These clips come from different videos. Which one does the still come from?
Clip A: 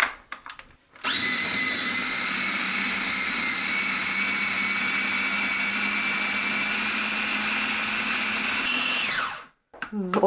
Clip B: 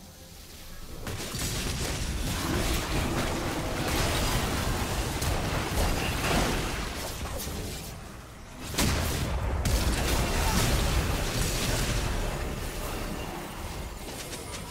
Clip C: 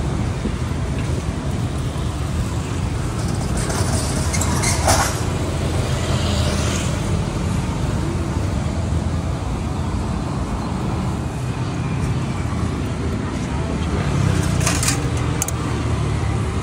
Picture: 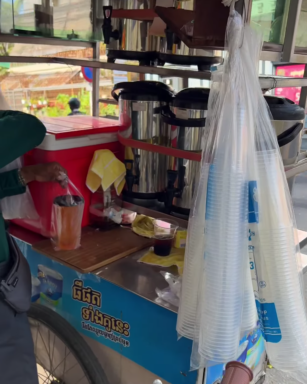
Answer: C